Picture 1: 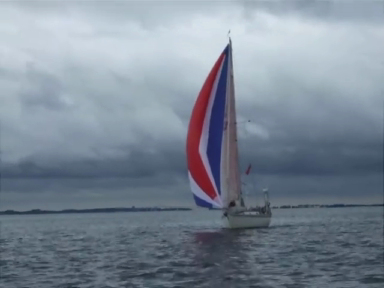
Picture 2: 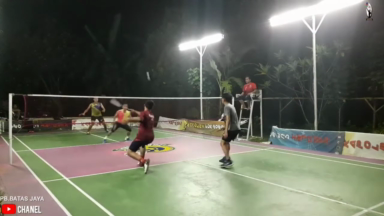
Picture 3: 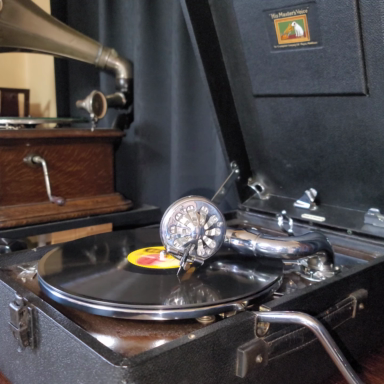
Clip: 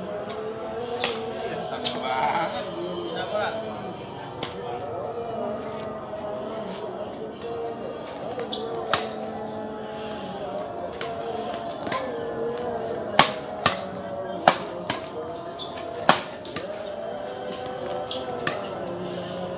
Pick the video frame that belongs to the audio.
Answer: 2